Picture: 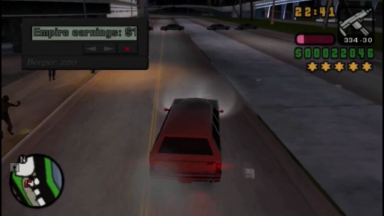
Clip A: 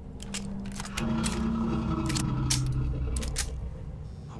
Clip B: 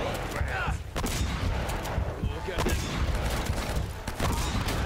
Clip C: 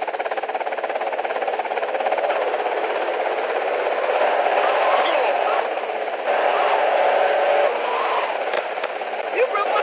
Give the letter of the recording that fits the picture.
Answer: C